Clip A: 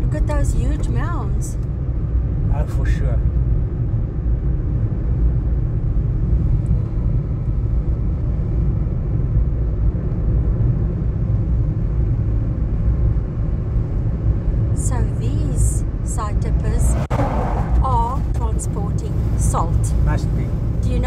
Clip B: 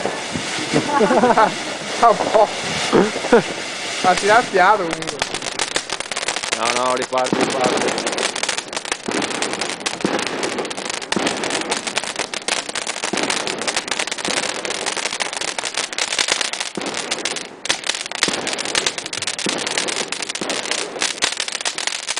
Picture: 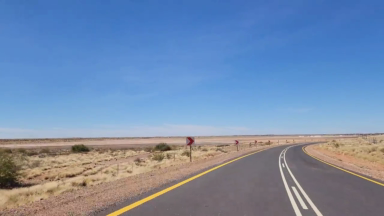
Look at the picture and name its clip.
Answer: A